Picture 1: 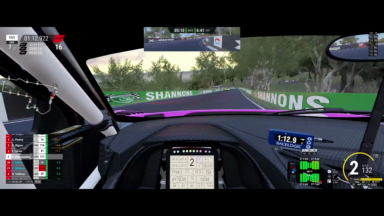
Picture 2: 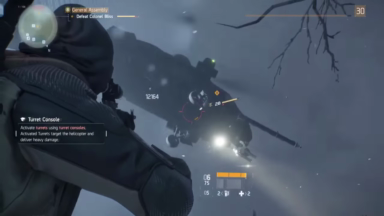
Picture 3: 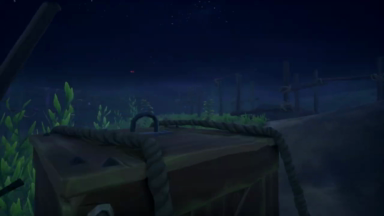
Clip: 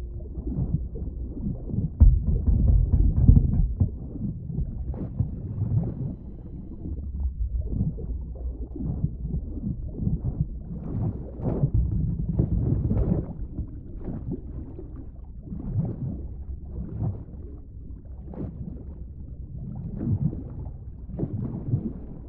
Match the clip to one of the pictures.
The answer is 3